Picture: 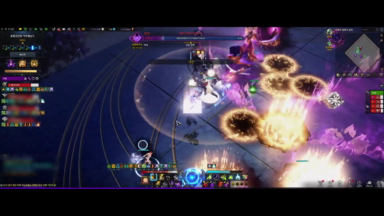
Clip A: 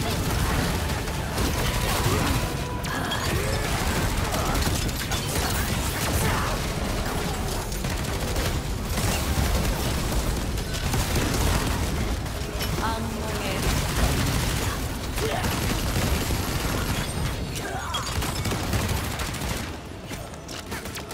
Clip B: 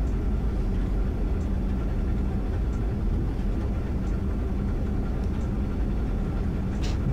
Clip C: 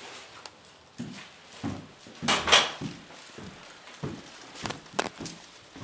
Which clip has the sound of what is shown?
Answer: A